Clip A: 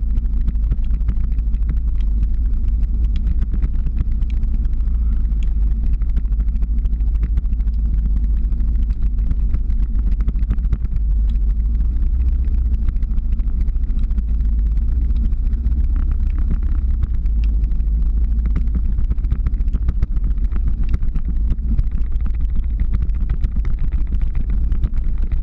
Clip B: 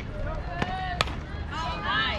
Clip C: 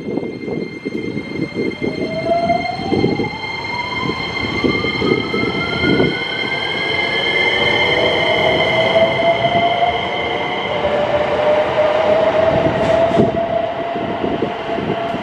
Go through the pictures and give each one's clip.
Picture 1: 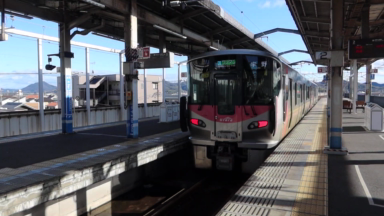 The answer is C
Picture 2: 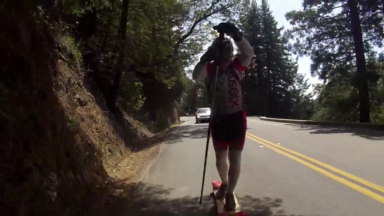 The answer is A